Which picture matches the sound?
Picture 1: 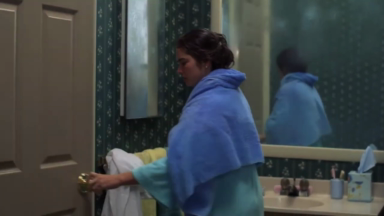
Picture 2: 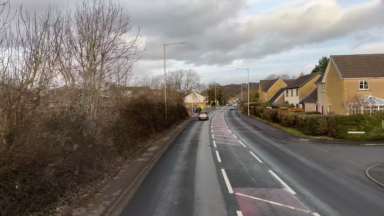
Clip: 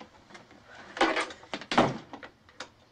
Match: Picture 1